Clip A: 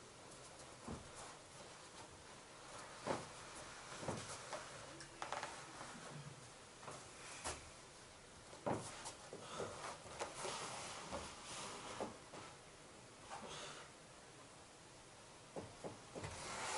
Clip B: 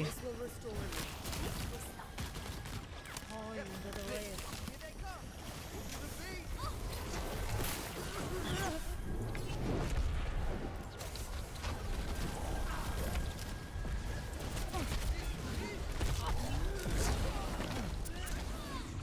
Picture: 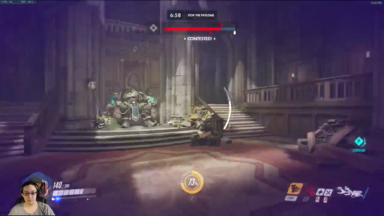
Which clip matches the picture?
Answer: B